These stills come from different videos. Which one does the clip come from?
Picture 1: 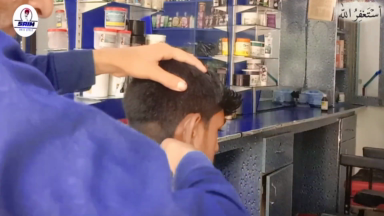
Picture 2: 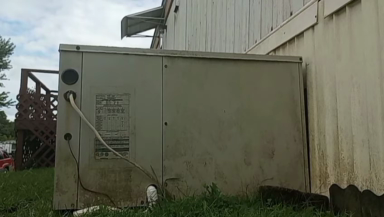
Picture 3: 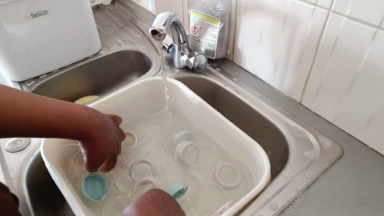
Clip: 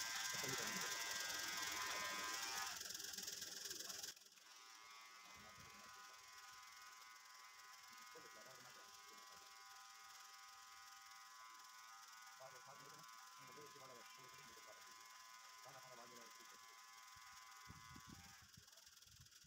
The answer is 1